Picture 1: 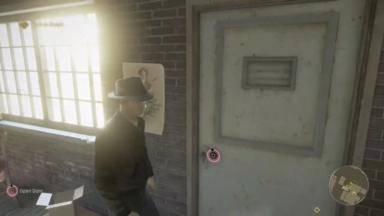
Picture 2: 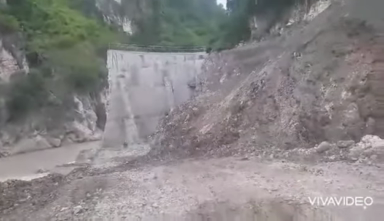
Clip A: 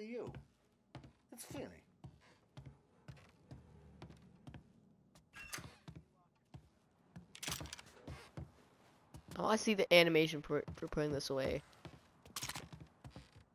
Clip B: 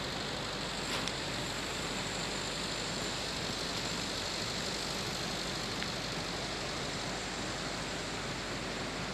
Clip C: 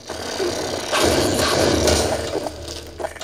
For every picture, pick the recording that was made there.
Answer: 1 A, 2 B